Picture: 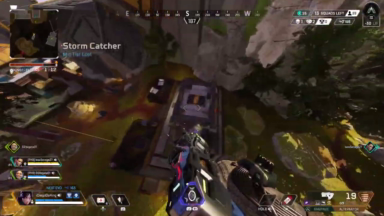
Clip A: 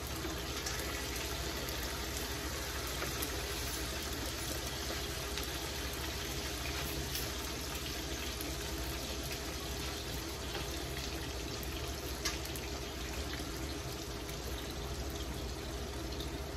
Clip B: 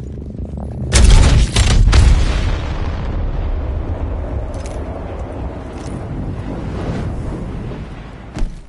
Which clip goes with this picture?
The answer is B